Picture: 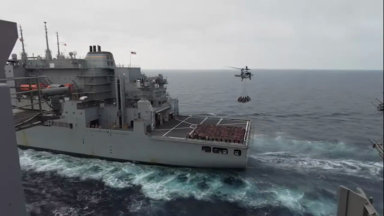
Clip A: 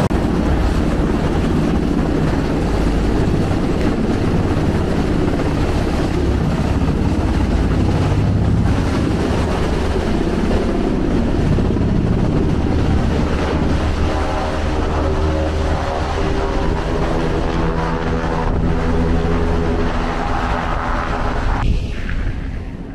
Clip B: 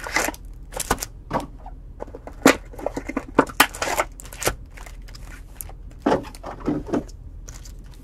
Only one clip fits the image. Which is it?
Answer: A